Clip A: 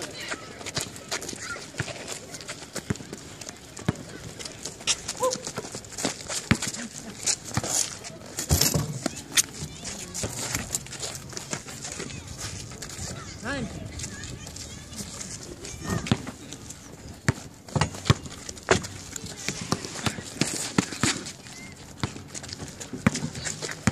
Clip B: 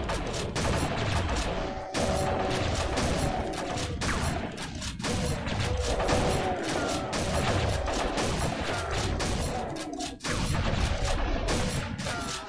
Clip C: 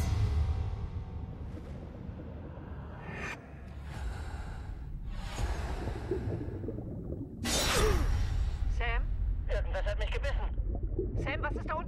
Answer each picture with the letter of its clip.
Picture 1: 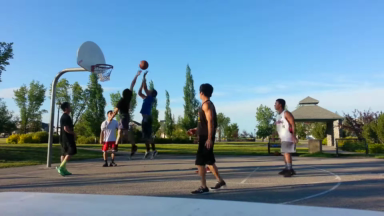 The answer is A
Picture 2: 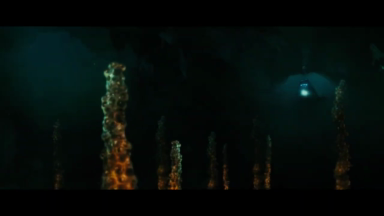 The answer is C